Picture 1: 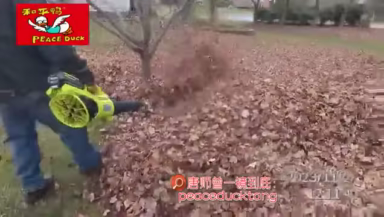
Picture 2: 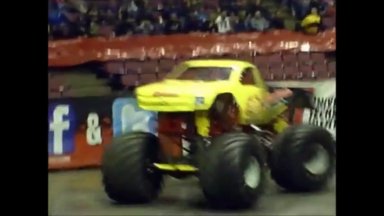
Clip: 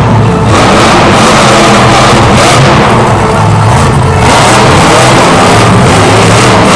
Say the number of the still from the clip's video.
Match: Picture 2